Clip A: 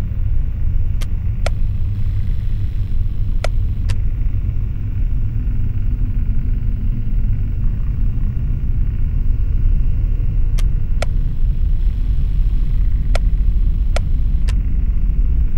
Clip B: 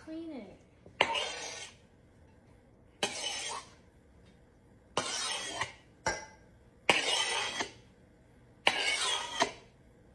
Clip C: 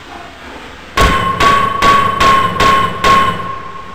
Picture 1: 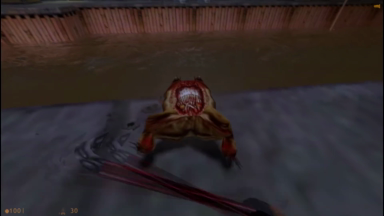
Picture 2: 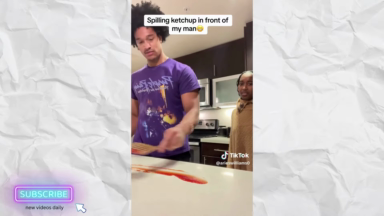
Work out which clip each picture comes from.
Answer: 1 C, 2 B